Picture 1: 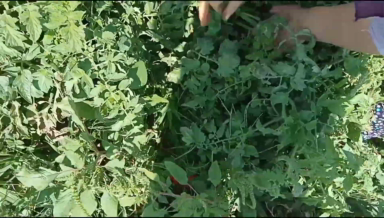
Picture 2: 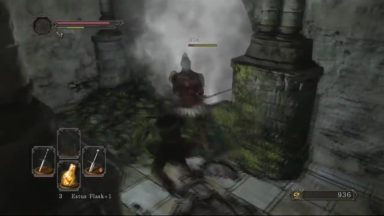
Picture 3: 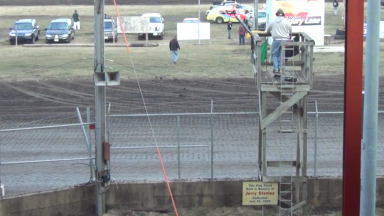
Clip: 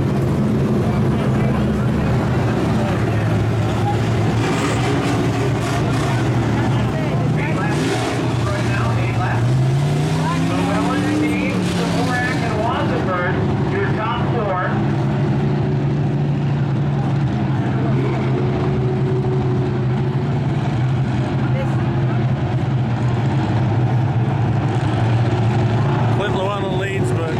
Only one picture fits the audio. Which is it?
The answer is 3